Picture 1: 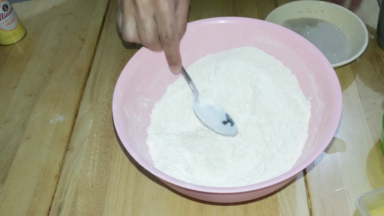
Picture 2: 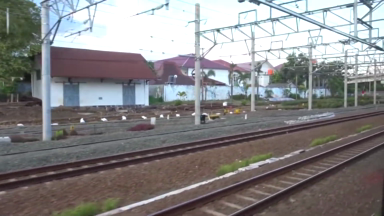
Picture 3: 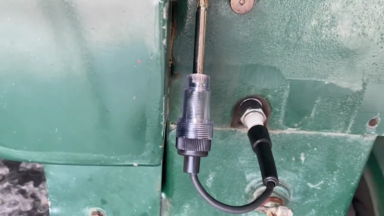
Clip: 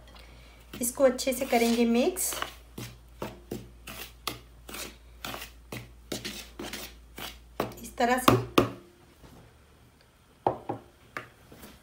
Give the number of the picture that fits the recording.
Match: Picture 1